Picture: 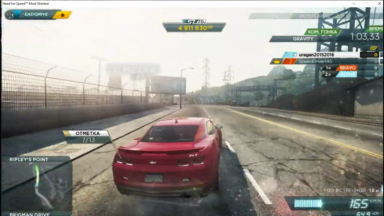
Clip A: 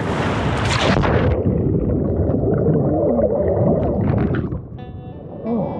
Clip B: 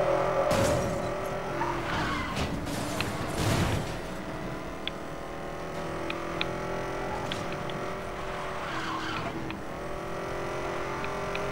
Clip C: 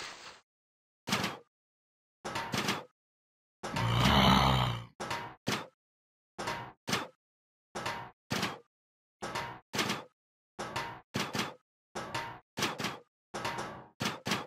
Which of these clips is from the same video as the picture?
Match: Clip B